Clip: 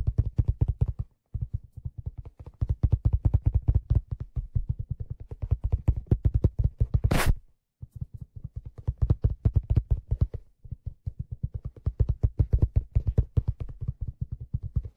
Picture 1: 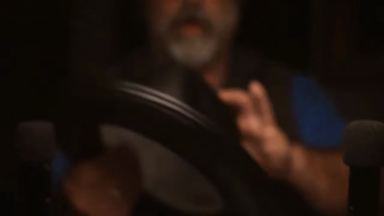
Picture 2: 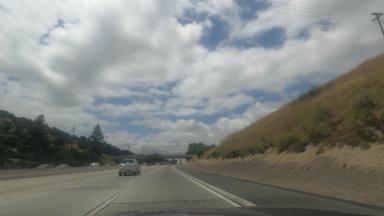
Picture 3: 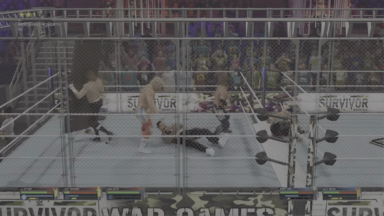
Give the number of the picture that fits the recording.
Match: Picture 1